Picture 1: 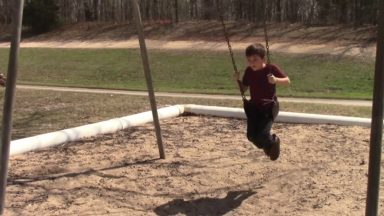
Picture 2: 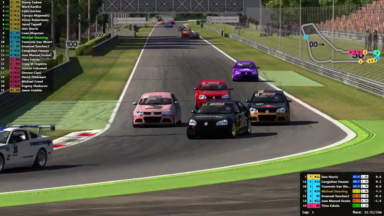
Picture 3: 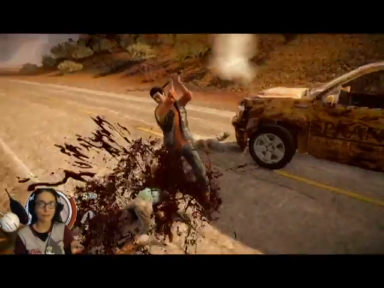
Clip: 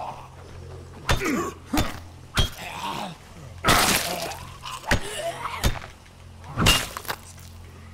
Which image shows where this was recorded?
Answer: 3